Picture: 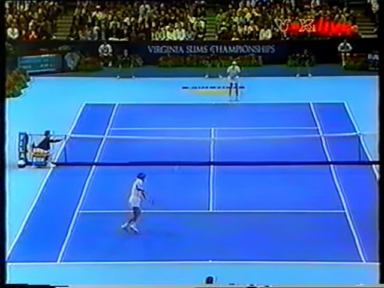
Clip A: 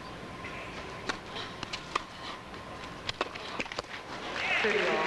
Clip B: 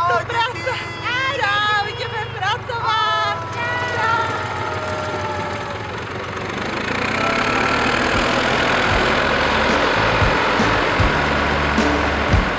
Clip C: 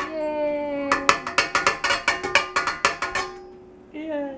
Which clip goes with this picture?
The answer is A